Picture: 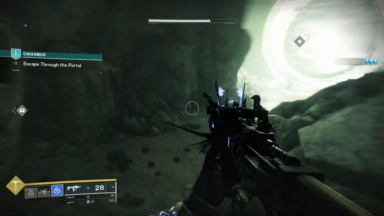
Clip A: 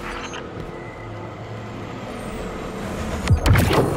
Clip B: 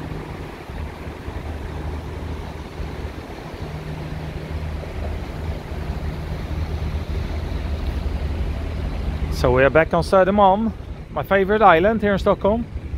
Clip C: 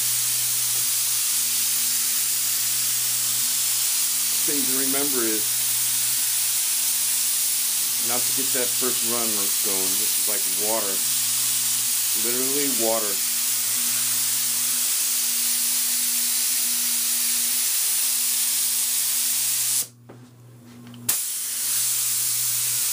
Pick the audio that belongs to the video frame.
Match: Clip A